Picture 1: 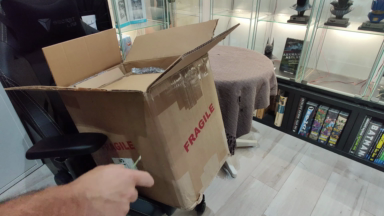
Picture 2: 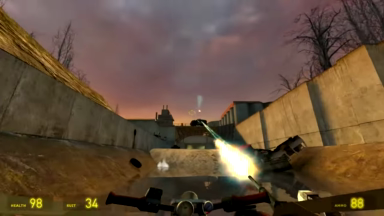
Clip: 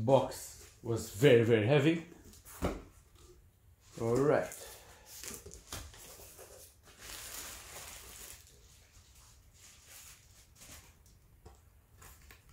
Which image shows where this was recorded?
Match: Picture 1